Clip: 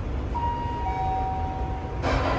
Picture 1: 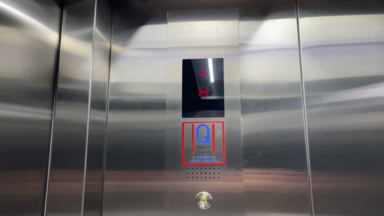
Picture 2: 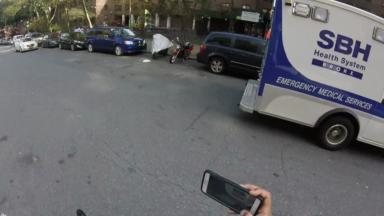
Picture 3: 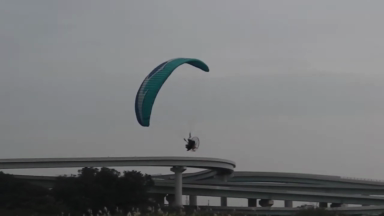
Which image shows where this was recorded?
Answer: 1